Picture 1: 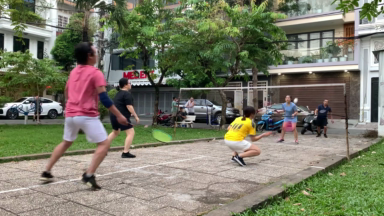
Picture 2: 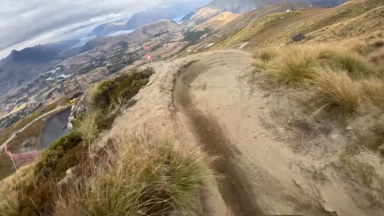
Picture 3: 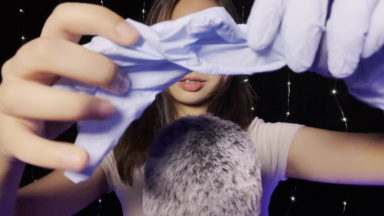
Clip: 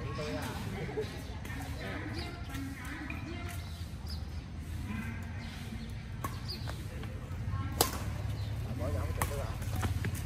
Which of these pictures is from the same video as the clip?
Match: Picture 1